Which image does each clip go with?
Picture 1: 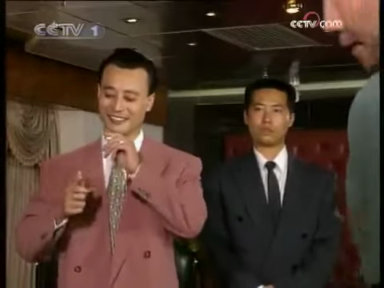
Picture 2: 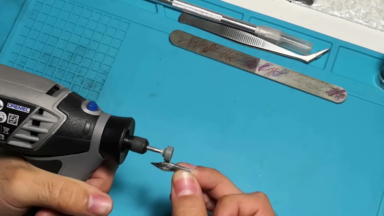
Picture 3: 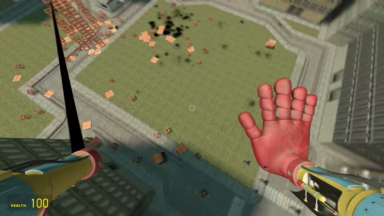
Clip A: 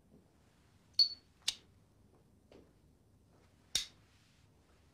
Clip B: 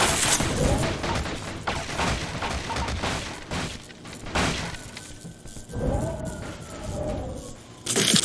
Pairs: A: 1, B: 3